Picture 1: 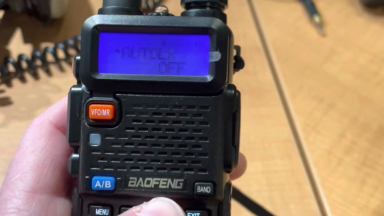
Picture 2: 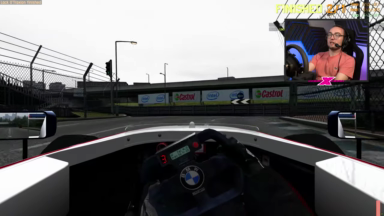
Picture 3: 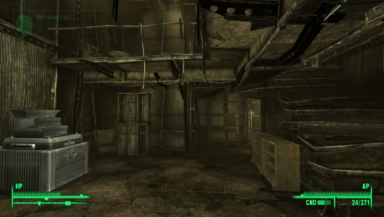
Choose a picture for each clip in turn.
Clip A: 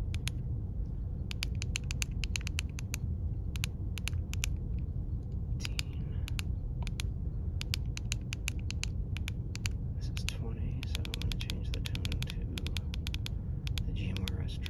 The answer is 1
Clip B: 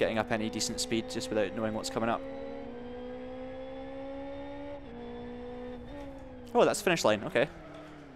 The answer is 2